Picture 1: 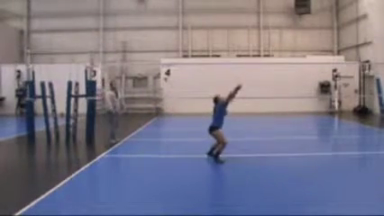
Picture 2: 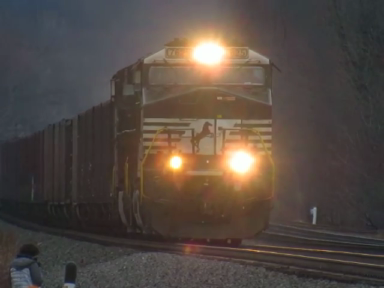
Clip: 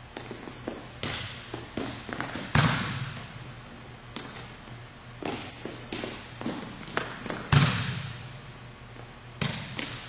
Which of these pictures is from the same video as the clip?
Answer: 1